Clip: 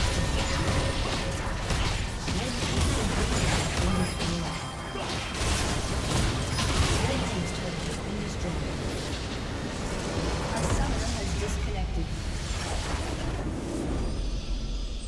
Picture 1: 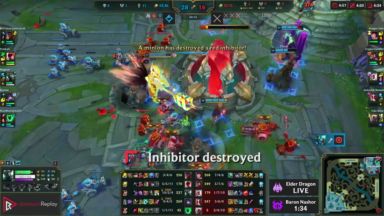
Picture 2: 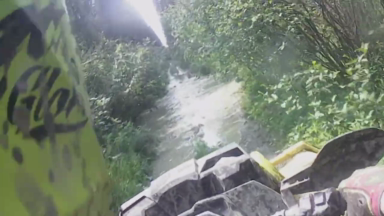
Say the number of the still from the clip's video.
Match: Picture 1